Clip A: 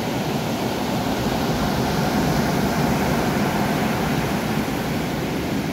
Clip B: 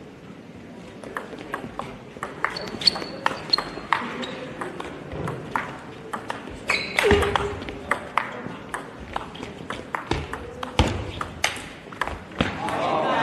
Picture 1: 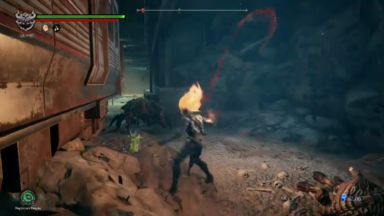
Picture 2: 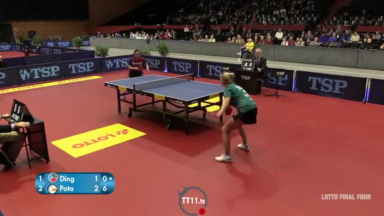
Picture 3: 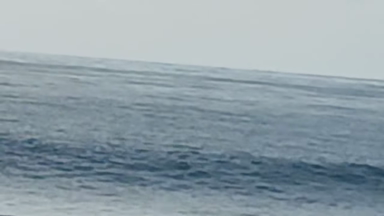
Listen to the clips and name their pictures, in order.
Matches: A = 3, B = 2